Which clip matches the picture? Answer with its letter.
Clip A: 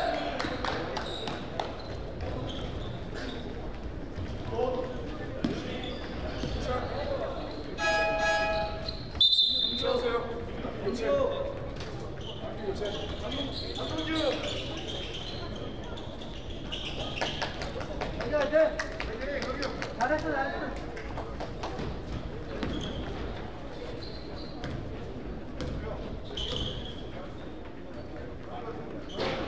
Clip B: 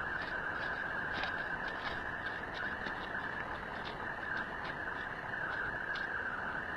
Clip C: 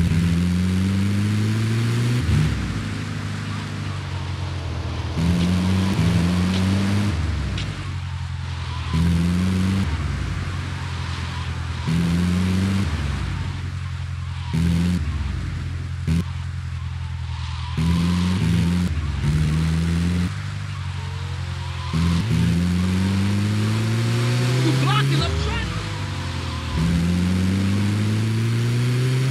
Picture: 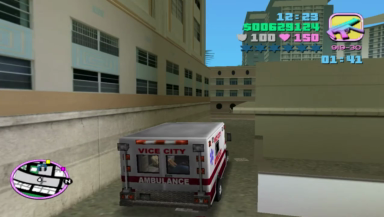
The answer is C